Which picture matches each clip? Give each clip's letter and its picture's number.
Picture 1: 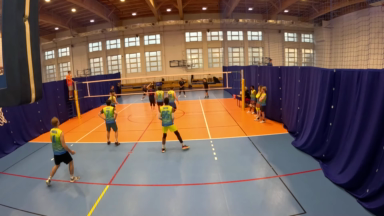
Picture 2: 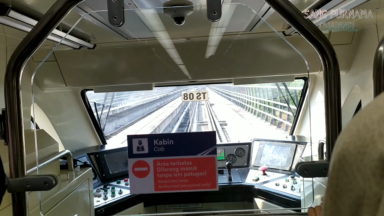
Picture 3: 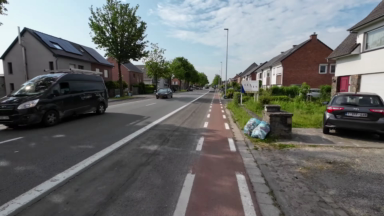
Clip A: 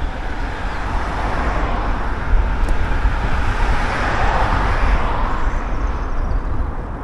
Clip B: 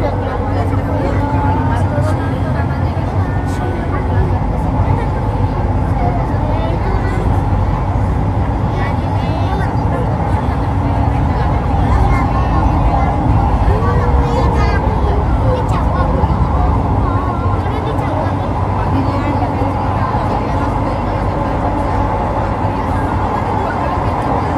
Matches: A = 3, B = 2